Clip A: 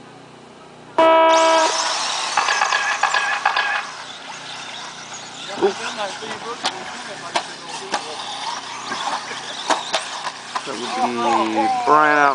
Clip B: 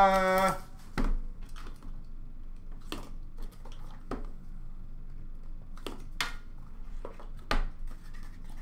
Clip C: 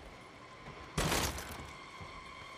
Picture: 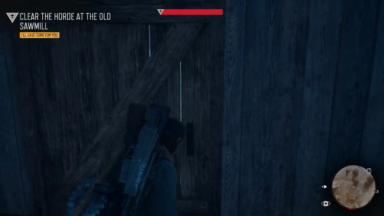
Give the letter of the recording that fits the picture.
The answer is C